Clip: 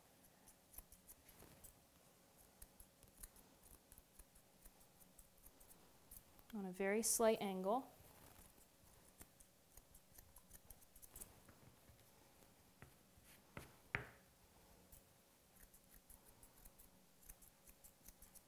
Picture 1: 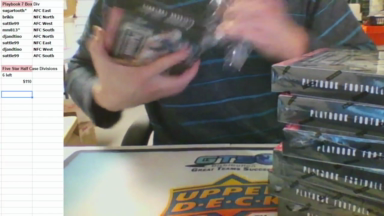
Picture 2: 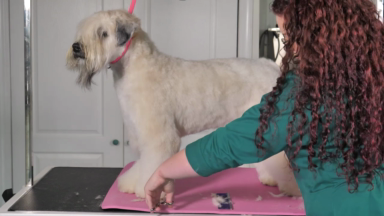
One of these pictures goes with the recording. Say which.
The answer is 2